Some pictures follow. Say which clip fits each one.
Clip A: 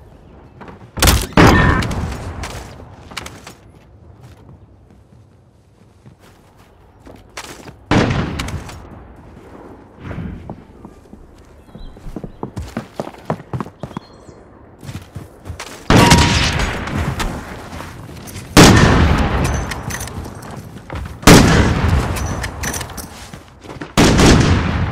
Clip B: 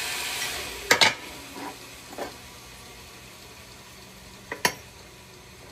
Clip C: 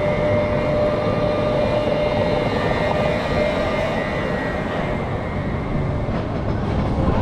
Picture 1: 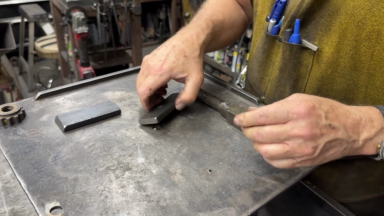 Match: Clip B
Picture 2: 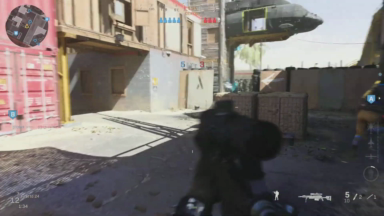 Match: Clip A